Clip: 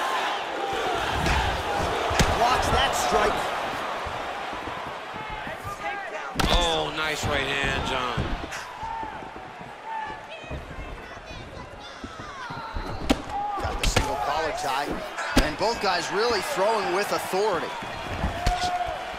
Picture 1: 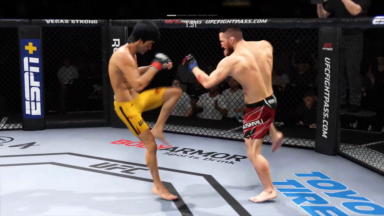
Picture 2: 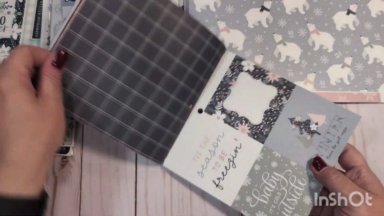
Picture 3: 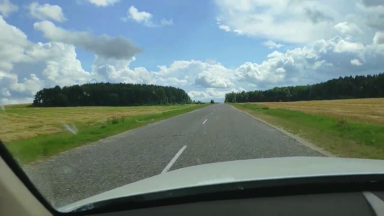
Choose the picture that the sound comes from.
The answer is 1